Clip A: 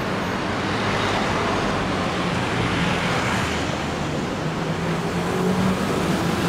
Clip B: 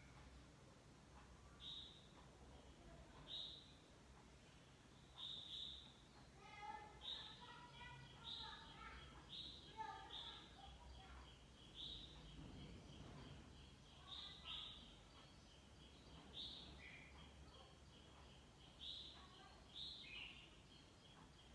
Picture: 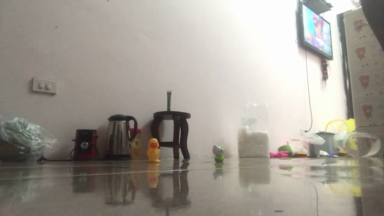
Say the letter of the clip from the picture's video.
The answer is B